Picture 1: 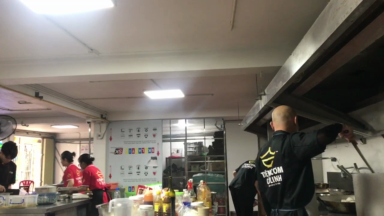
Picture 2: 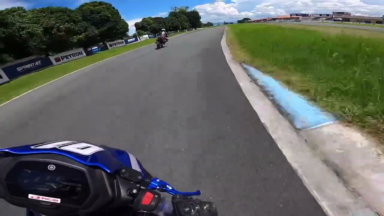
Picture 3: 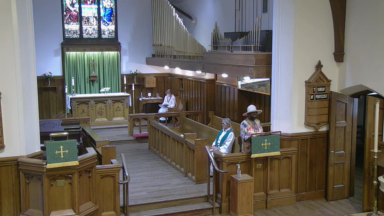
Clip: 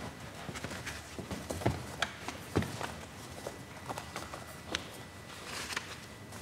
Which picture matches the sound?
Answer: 3